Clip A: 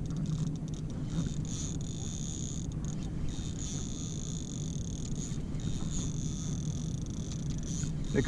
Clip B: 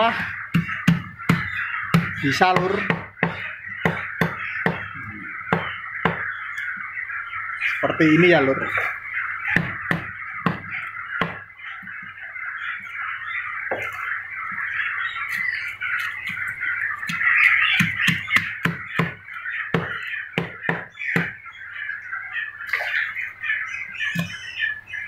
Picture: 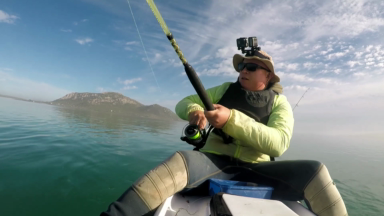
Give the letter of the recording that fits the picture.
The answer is A